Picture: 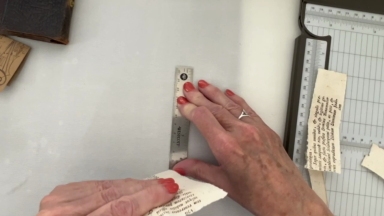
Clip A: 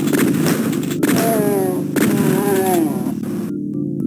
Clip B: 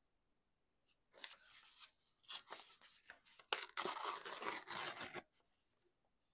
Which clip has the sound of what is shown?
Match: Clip B